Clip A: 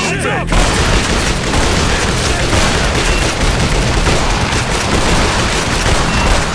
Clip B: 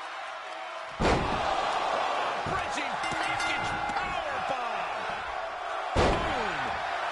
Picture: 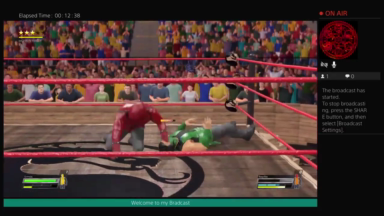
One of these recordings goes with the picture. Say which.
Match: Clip B